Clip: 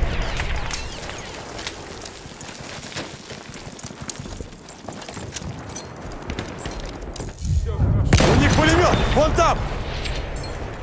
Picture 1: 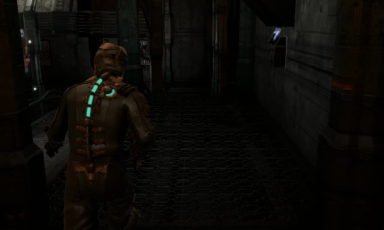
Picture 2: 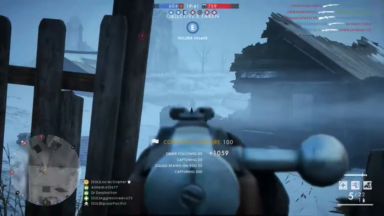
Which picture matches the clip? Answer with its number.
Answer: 2